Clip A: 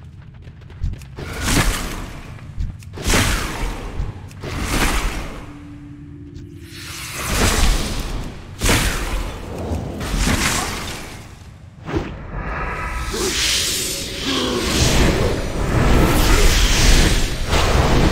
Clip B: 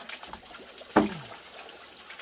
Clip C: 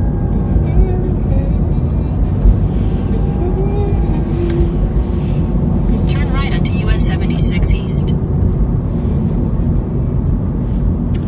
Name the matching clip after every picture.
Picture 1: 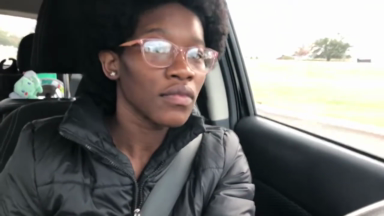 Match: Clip C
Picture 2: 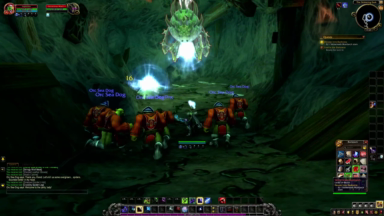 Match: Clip A